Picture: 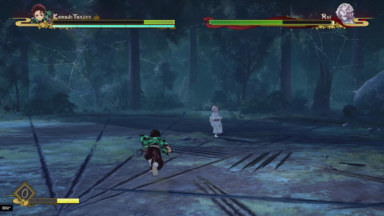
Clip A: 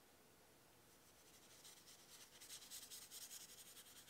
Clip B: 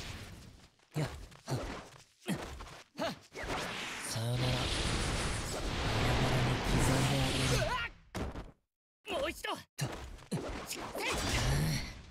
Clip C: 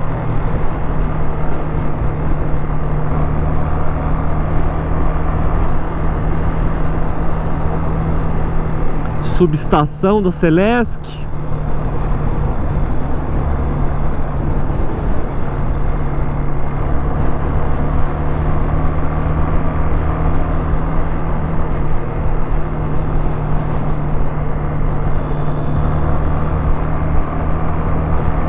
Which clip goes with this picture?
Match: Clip B